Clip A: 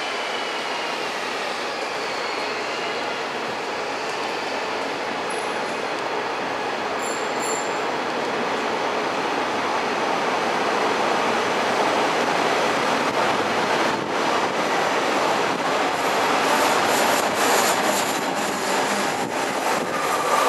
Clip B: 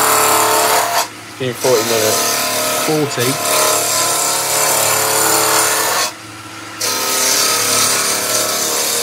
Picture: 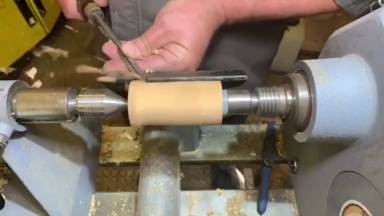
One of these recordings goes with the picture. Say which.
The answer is B